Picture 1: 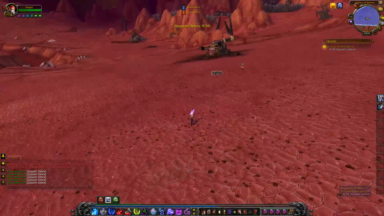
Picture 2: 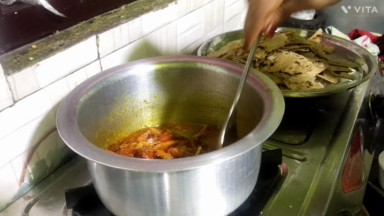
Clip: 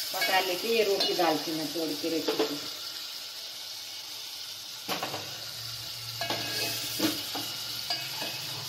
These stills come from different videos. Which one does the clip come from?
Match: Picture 2